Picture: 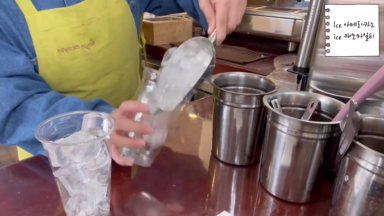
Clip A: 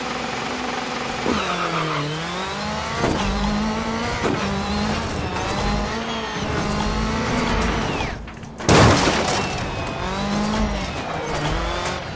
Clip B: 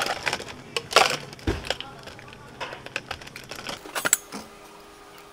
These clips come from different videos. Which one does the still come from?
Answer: B